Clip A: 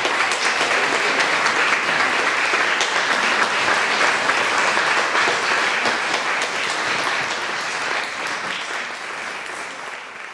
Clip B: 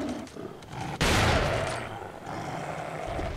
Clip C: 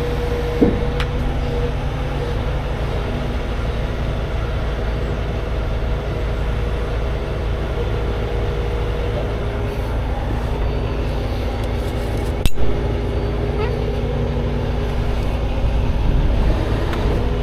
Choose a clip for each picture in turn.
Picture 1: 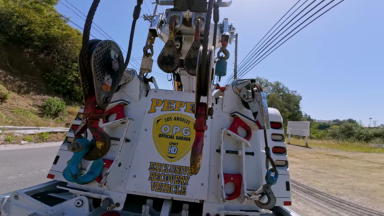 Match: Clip C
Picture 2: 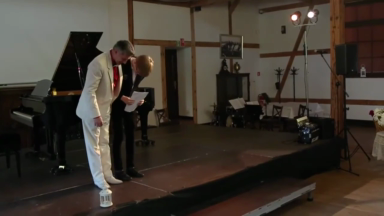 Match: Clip A